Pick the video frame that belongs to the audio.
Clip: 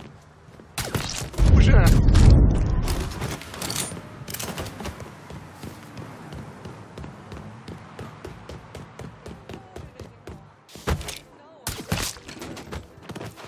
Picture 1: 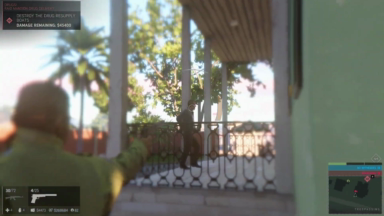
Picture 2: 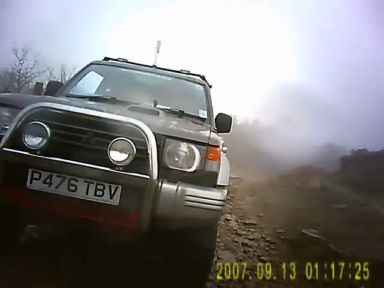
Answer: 1